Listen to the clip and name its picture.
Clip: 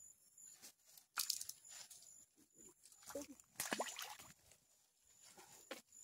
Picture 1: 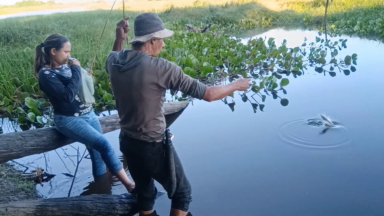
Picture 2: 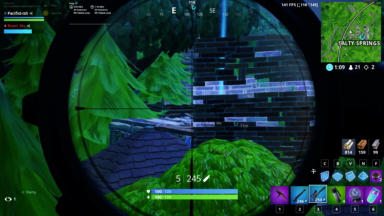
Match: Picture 1